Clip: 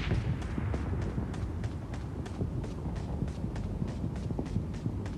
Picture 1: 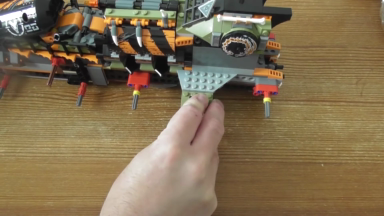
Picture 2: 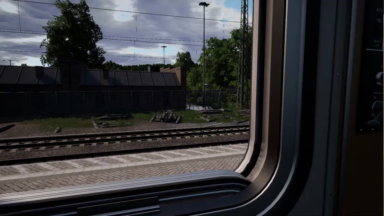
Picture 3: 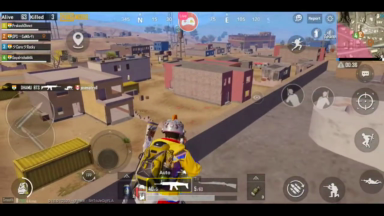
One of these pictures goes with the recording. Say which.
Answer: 3